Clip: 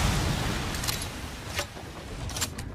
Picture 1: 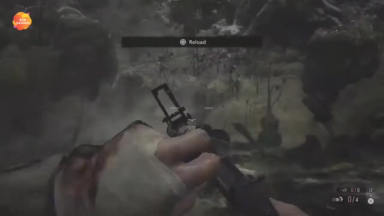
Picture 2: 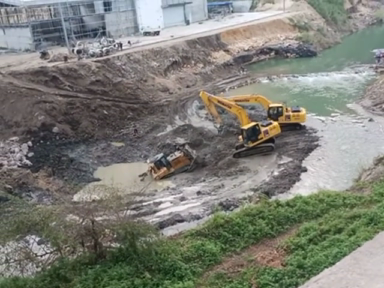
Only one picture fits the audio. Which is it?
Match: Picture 1